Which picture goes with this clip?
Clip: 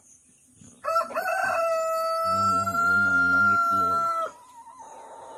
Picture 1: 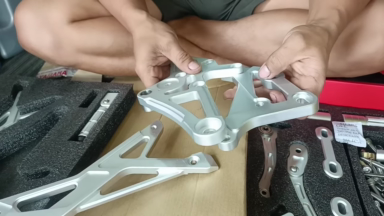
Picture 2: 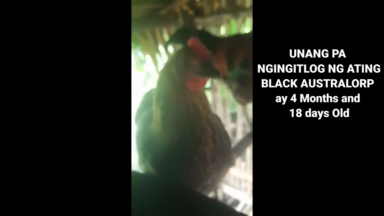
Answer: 2